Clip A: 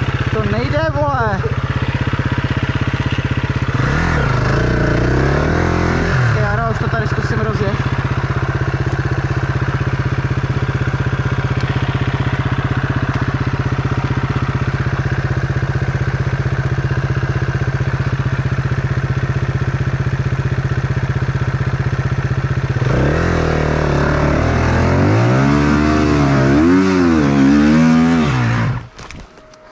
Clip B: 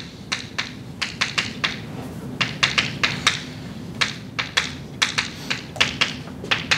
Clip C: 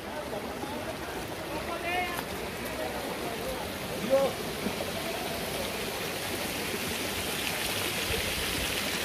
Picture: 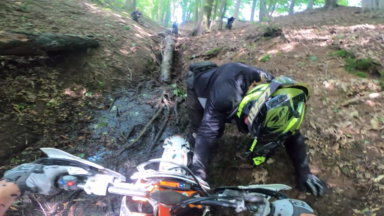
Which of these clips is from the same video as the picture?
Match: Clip A